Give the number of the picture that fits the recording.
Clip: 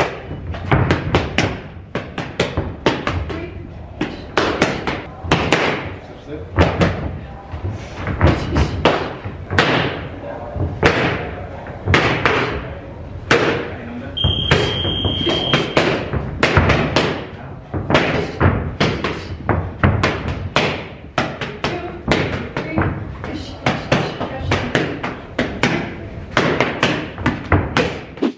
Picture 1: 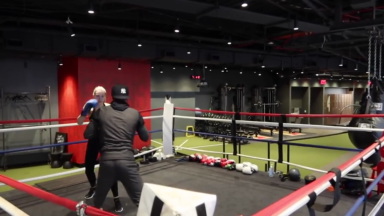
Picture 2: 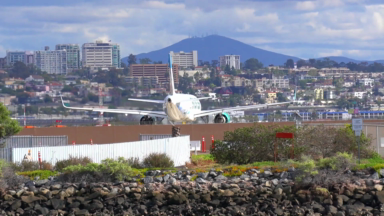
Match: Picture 1